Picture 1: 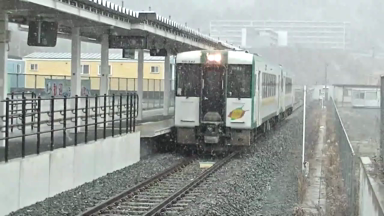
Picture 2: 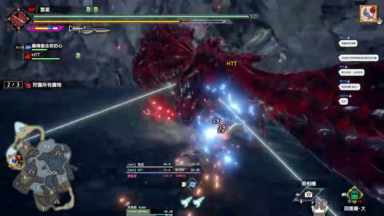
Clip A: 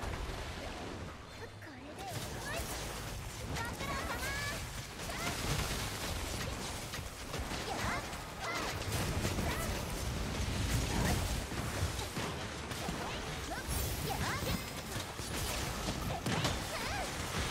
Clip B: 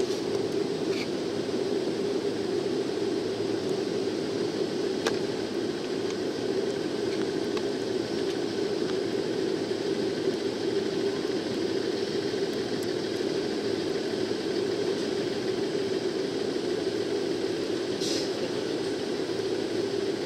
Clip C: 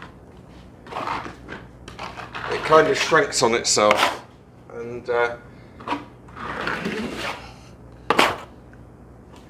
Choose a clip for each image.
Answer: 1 B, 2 A